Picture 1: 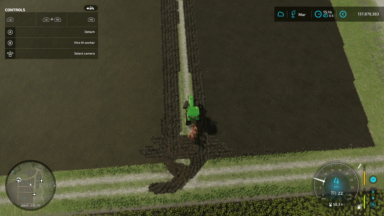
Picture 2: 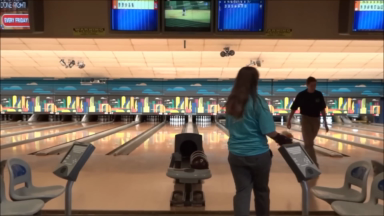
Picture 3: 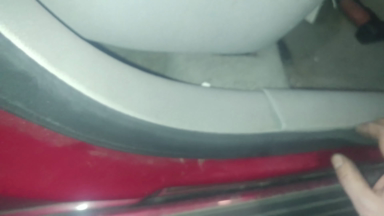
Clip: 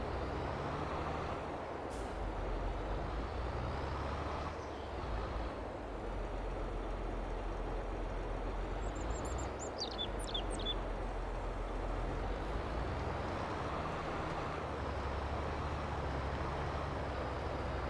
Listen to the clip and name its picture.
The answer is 1